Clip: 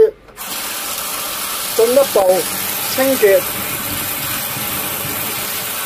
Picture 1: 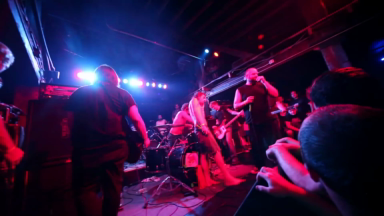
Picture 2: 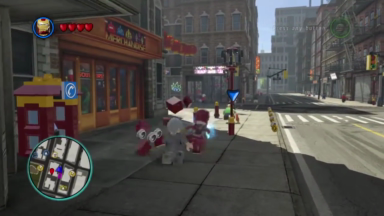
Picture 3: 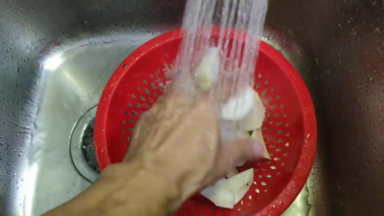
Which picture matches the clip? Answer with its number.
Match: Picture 3